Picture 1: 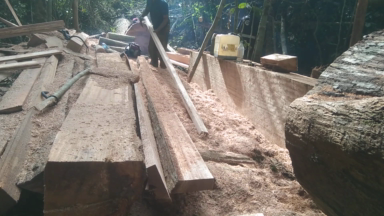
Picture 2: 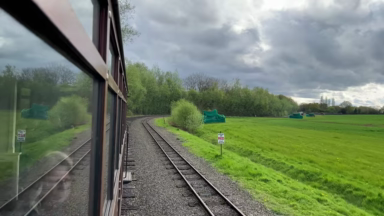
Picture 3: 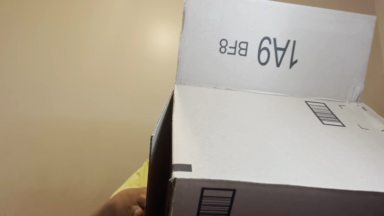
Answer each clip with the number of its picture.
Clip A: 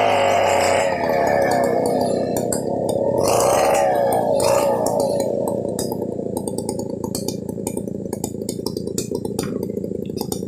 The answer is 1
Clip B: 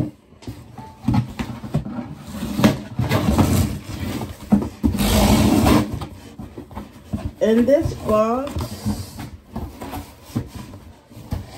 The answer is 3